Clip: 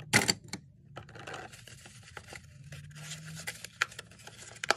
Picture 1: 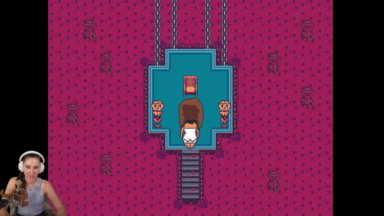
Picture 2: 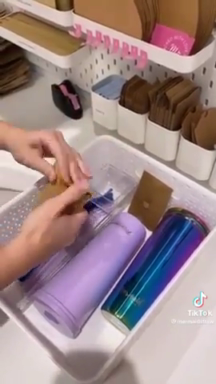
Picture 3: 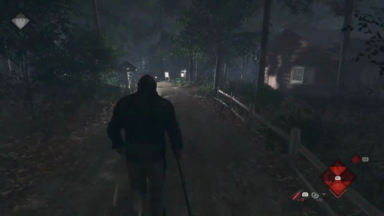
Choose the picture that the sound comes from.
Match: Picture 2